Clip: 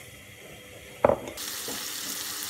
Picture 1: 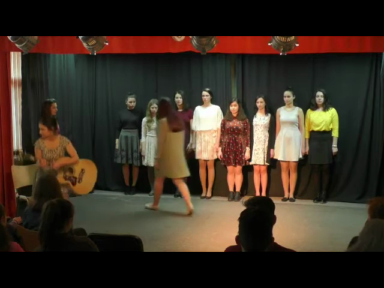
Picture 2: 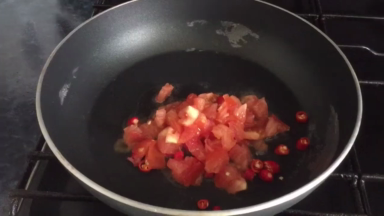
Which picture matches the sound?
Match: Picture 2